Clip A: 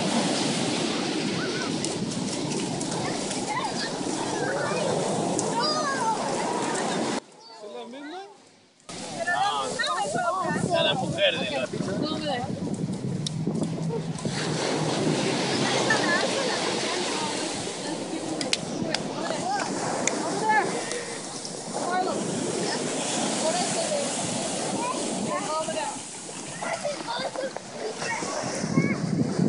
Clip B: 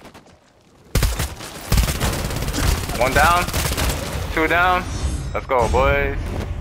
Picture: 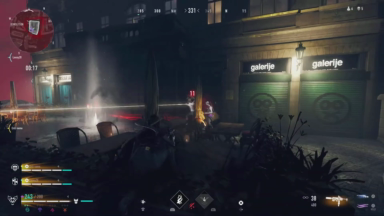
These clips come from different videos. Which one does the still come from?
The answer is B